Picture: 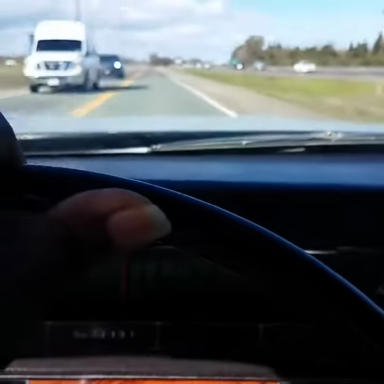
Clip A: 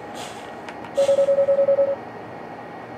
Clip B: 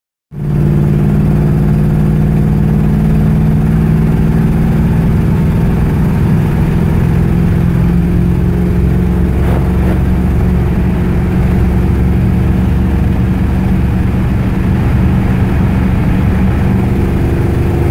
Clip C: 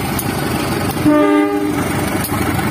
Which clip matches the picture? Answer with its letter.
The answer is B